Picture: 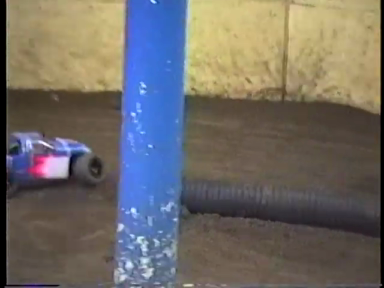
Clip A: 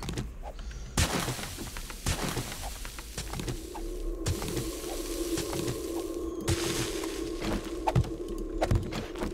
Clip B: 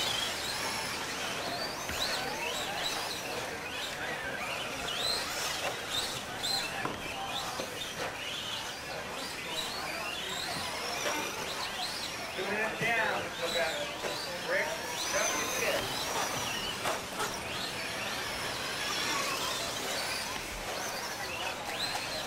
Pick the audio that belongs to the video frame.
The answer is B